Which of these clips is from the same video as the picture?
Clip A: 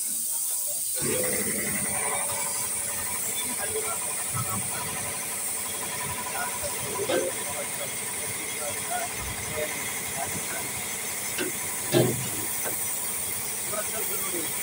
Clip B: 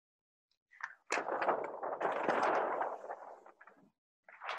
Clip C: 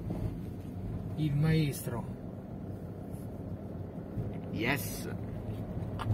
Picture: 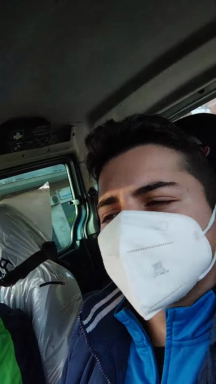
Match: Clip C